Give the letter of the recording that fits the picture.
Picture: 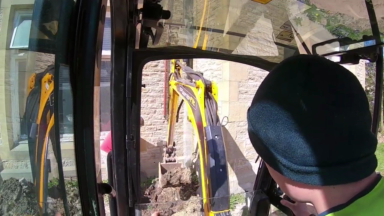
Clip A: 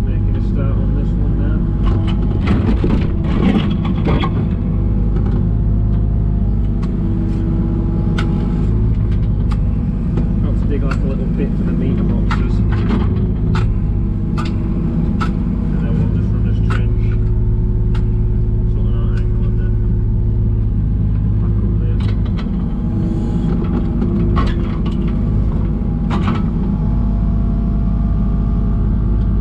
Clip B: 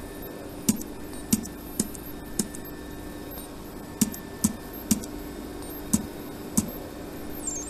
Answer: A